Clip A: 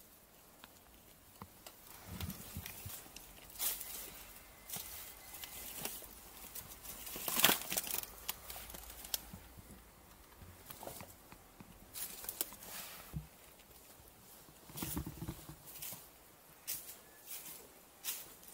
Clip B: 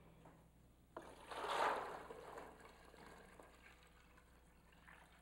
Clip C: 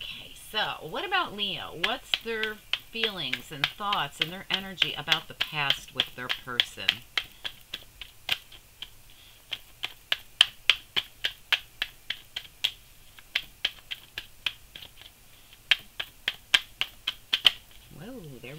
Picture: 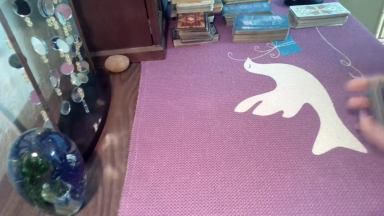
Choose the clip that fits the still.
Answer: C